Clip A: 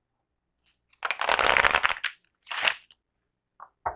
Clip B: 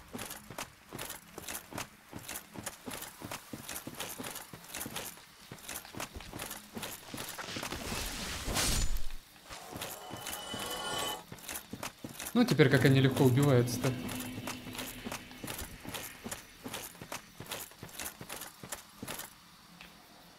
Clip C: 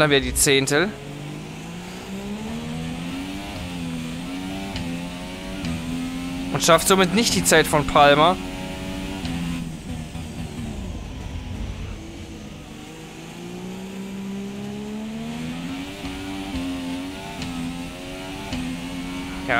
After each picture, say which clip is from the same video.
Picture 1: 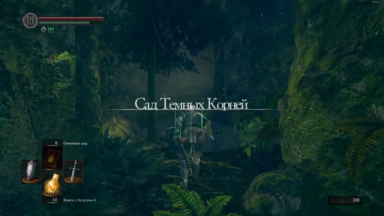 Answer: B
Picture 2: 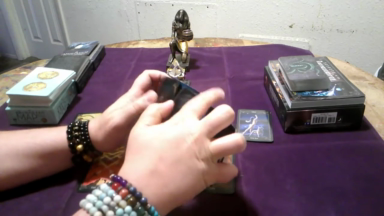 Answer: A